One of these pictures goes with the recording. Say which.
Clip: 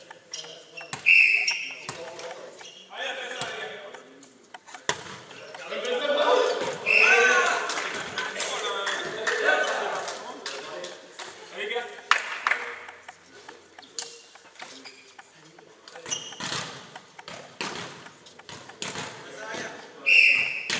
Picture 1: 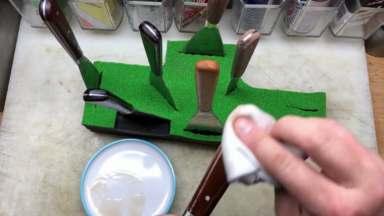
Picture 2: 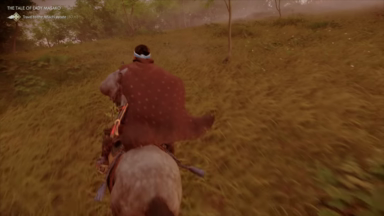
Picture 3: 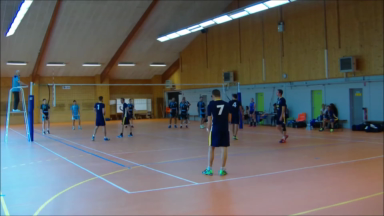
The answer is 3